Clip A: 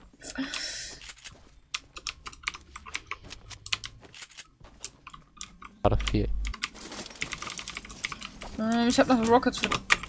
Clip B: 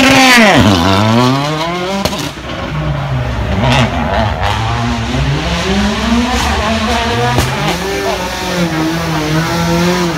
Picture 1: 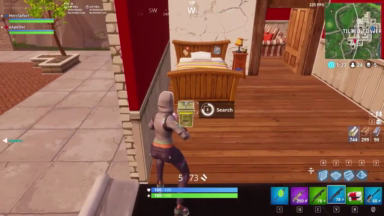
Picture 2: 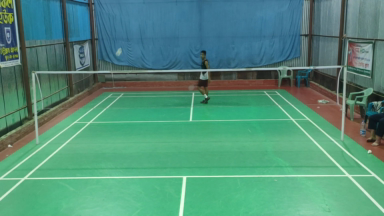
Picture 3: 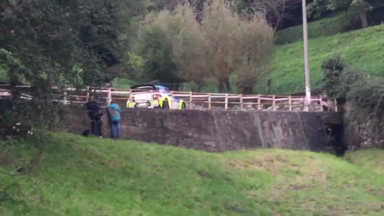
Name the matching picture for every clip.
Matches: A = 1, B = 3